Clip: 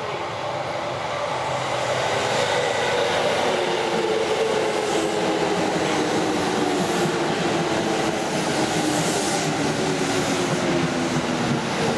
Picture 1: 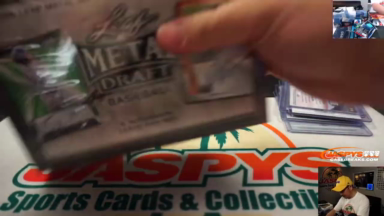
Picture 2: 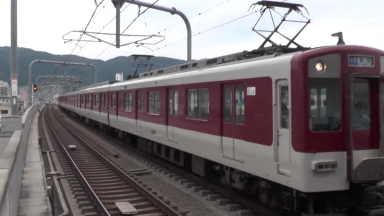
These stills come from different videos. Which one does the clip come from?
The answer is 2